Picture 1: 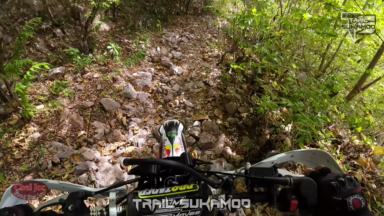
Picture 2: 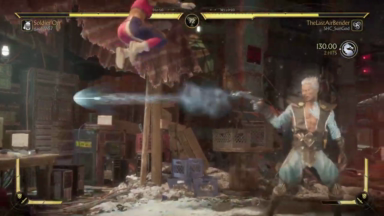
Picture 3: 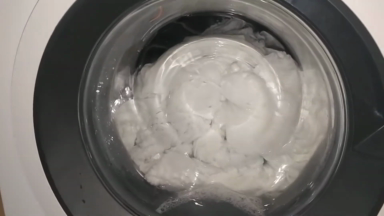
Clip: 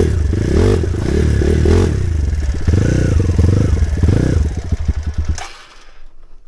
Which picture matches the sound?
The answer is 1